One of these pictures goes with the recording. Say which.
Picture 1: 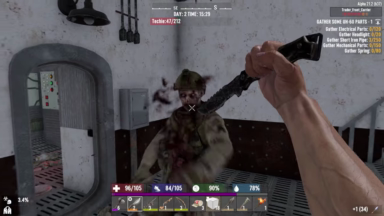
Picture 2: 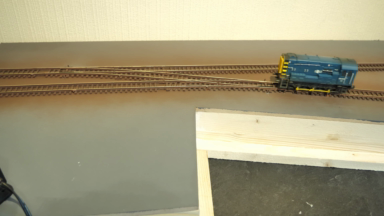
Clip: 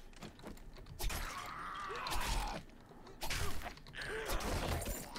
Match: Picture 1